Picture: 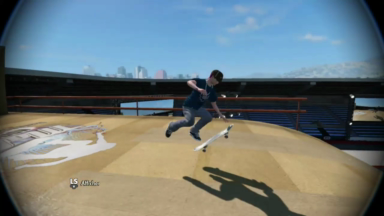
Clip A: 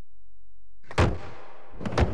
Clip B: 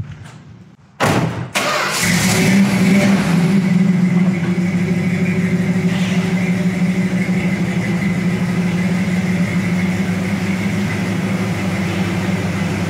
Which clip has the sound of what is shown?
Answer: A